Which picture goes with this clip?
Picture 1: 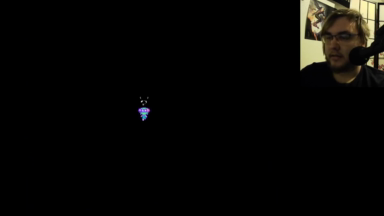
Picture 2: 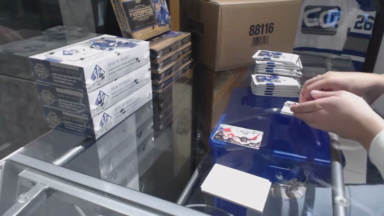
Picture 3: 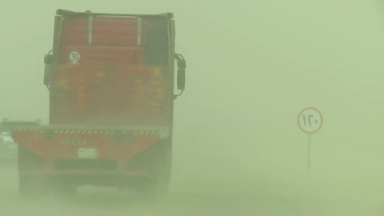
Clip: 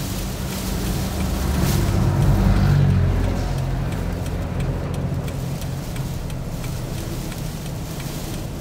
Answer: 3